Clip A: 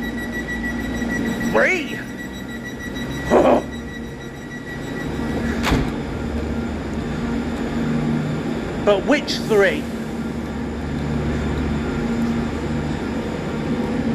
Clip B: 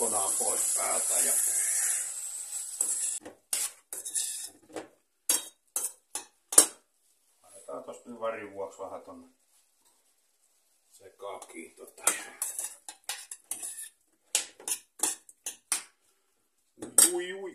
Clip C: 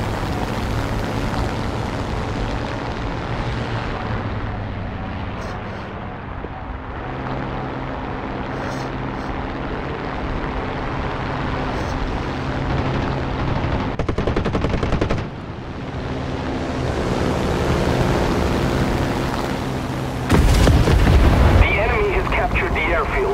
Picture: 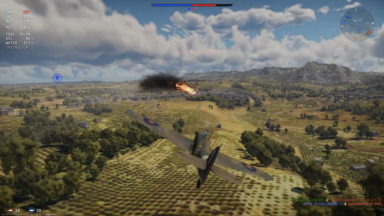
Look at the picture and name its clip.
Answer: C